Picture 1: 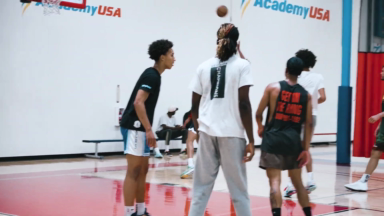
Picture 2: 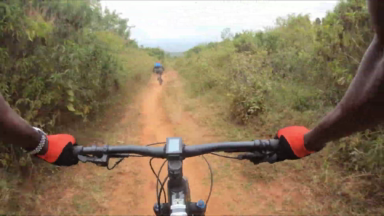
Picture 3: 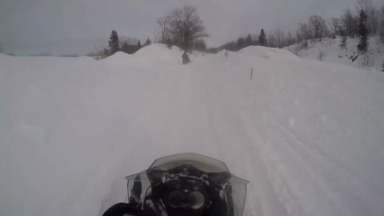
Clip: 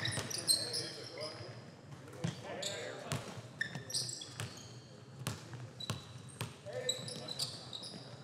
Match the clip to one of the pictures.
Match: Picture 1